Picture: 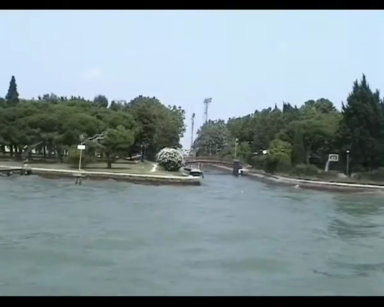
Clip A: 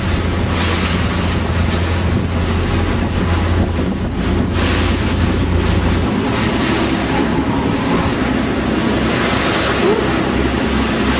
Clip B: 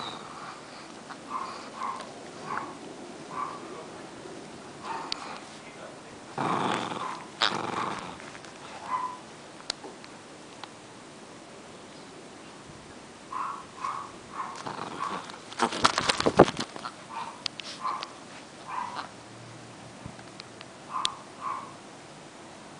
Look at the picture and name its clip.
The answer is A